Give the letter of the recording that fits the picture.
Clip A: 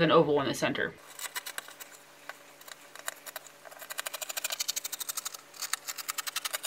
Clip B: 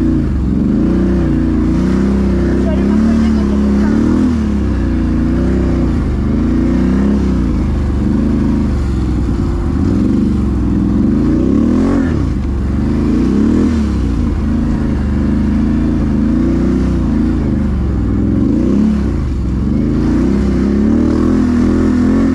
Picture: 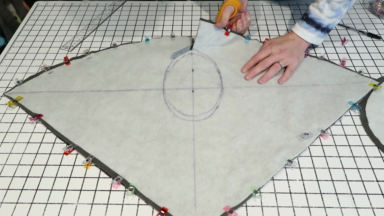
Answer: A